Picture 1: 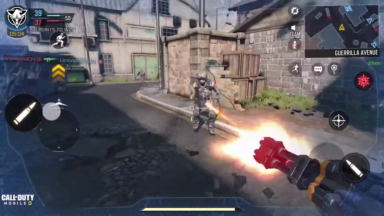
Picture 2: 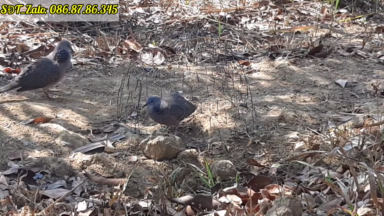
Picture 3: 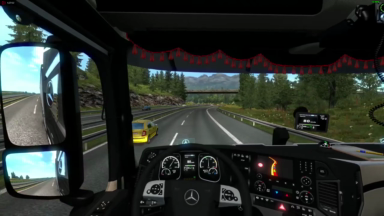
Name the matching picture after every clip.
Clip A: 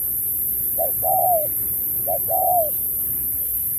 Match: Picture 2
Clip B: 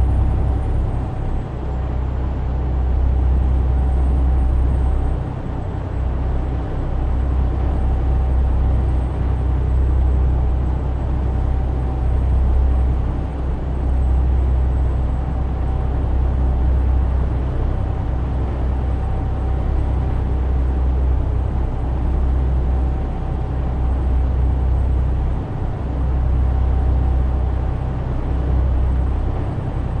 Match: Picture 3